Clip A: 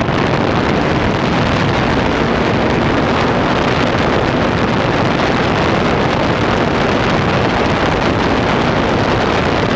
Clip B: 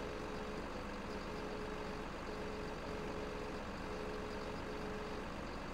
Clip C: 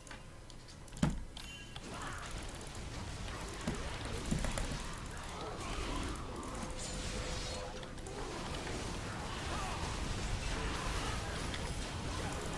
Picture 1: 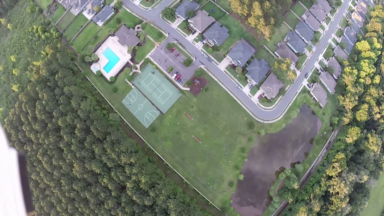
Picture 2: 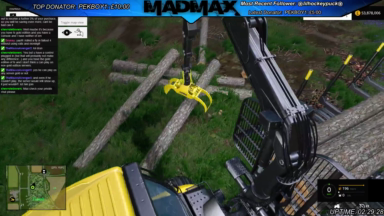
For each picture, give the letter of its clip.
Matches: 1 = A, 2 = B